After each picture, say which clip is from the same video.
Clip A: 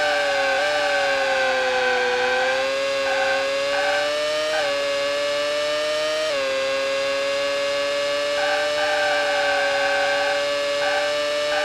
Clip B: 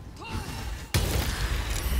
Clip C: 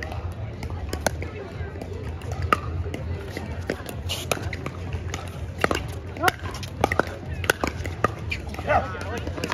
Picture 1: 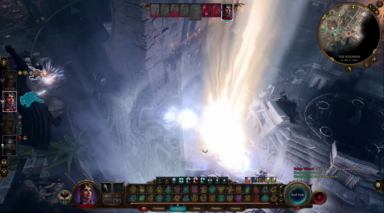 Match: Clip B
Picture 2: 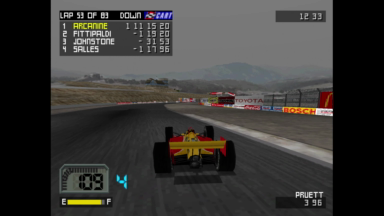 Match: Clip A